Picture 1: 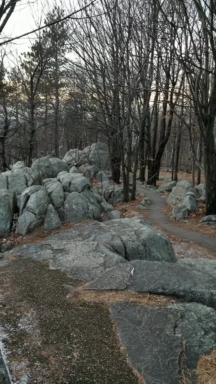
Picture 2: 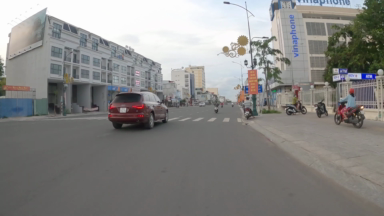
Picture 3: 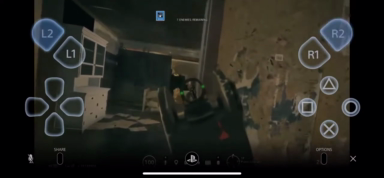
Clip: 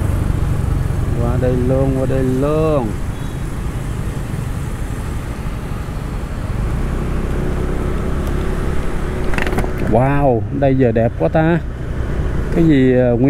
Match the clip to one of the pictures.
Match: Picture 2